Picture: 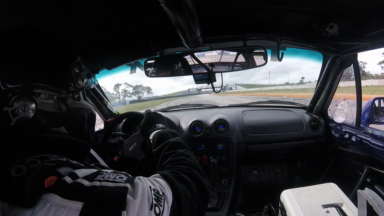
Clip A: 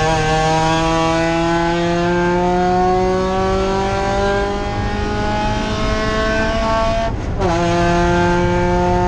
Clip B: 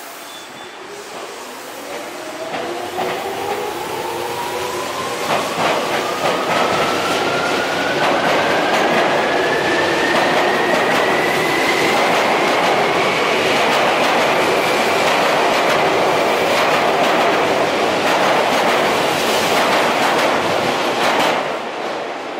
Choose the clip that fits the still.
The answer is A